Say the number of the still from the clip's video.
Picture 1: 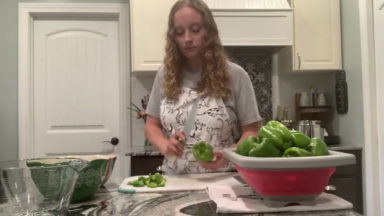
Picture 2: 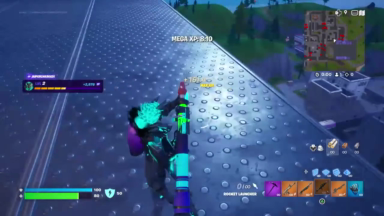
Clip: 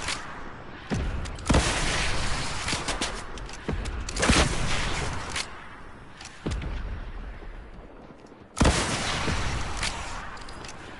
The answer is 2